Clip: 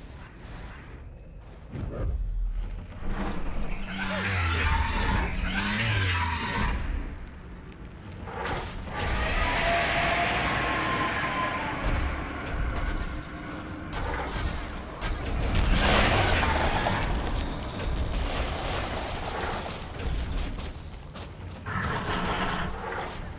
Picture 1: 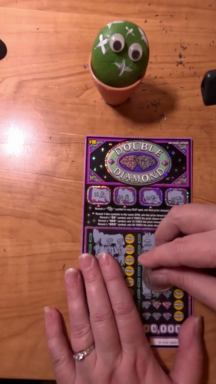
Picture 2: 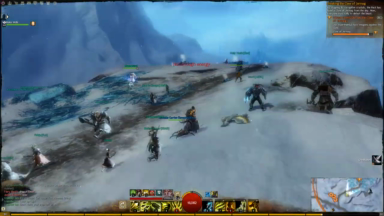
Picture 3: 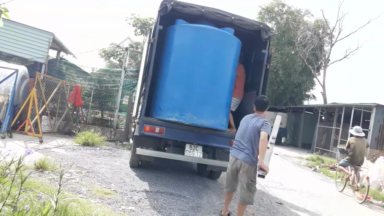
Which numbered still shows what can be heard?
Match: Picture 2